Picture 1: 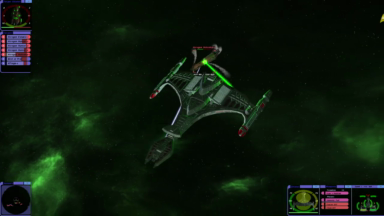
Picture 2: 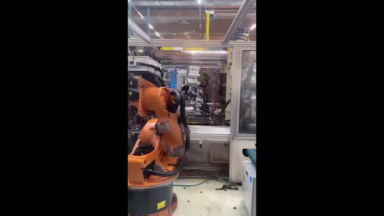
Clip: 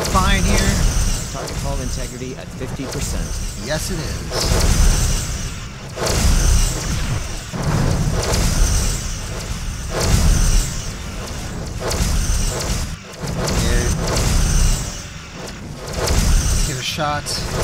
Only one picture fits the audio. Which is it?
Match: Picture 1